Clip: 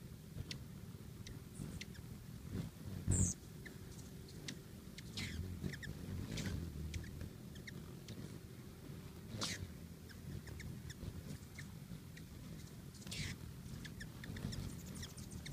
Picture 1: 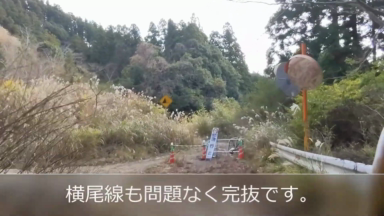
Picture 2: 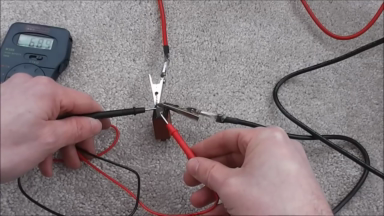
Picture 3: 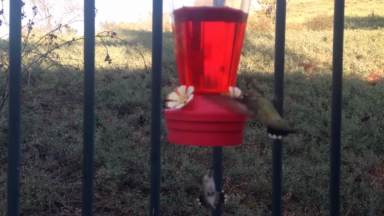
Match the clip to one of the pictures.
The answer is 3